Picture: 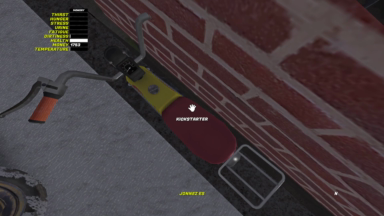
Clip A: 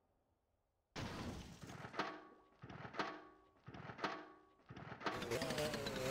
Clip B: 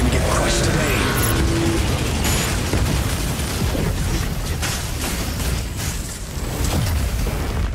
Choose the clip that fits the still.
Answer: A